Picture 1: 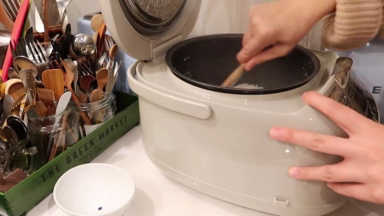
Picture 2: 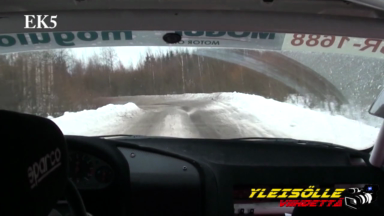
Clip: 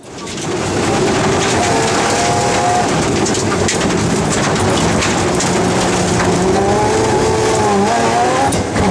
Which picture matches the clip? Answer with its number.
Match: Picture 2